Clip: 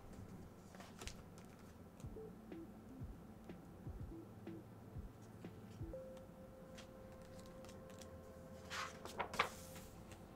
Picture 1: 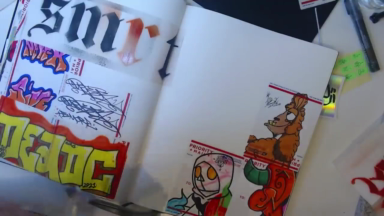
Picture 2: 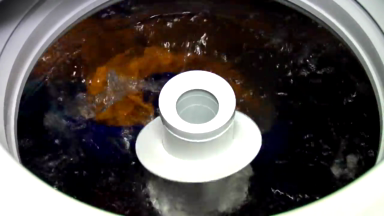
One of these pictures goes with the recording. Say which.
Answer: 1